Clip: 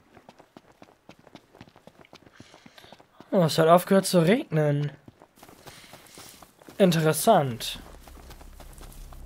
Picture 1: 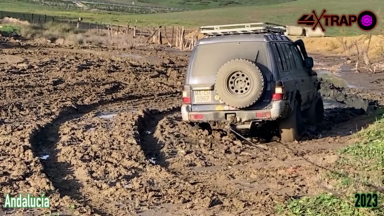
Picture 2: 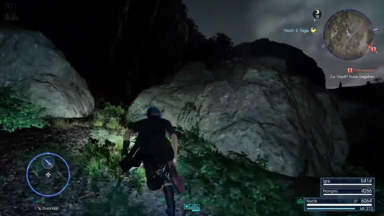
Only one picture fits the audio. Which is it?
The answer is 2